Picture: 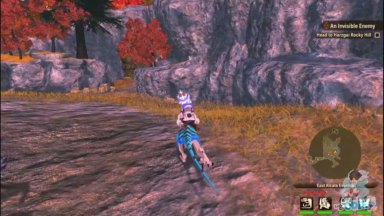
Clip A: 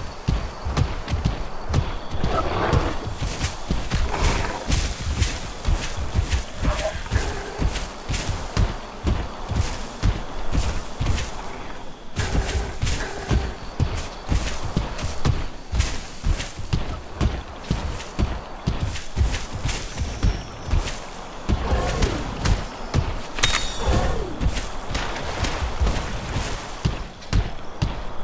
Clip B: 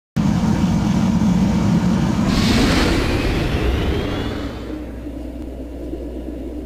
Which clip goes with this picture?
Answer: A